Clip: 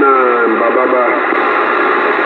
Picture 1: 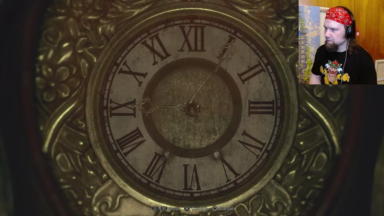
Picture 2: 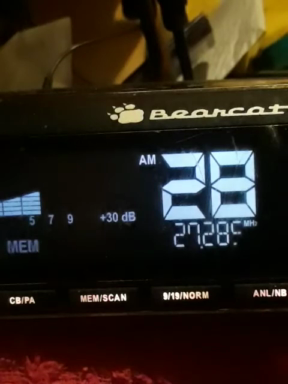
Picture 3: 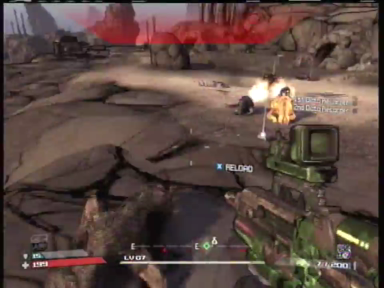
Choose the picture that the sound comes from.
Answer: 2